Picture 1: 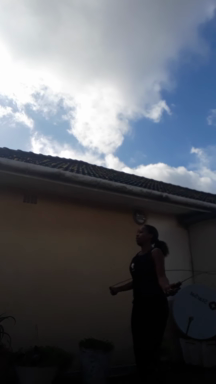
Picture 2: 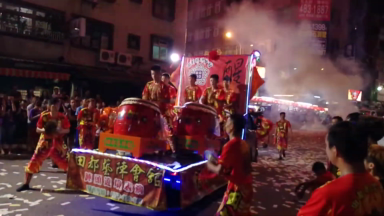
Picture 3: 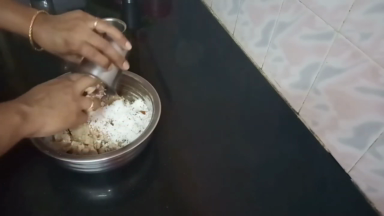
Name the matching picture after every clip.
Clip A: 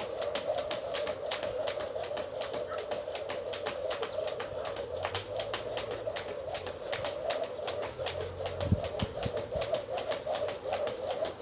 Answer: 1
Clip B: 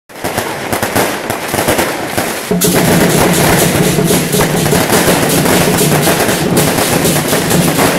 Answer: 2